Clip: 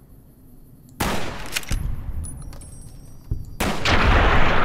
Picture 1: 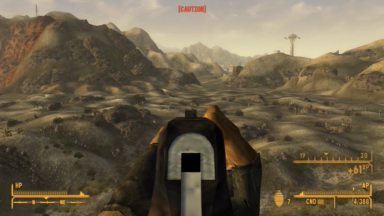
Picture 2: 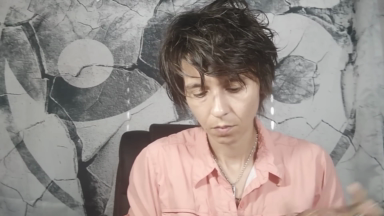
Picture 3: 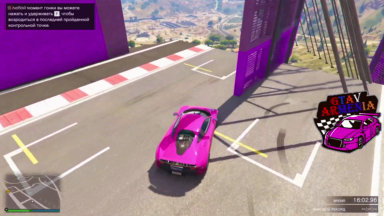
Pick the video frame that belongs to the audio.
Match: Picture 1